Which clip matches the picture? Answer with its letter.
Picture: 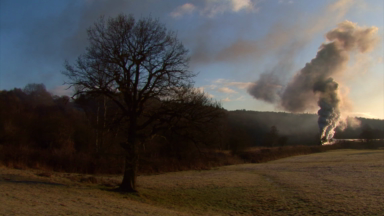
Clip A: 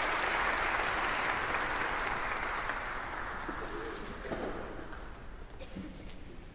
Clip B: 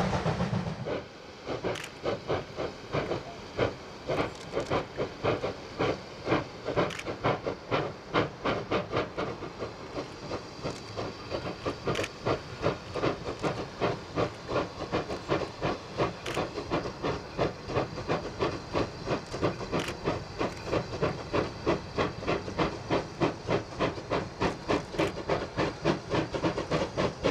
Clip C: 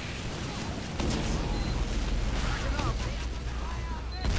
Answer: B